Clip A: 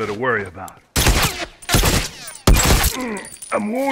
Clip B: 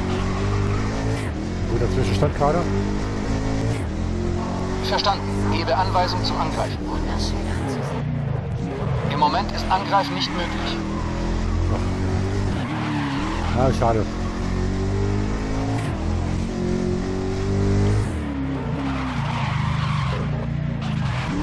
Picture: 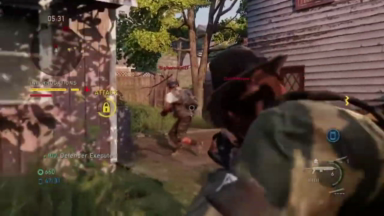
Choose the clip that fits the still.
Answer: A